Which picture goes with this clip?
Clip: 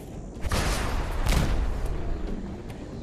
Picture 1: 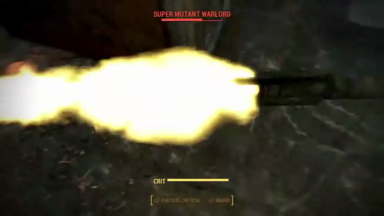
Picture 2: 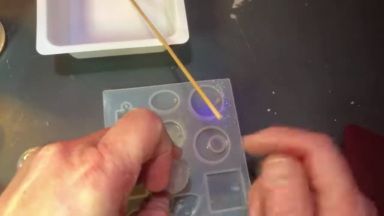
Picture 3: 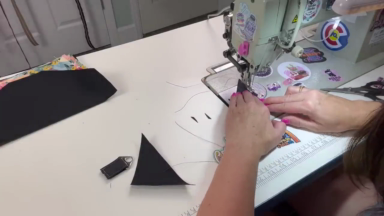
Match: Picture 1